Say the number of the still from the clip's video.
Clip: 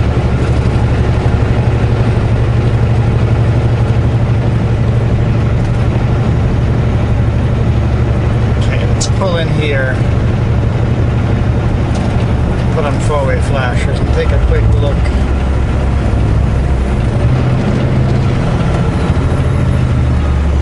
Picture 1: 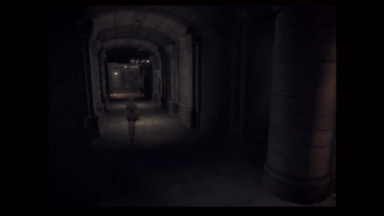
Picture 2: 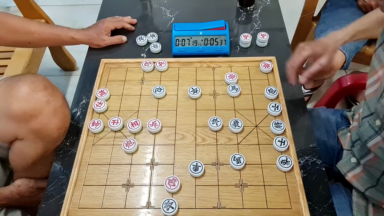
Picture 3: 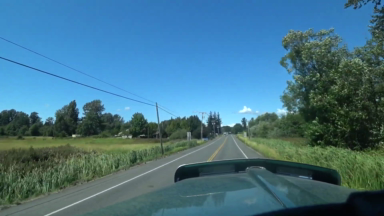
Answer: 3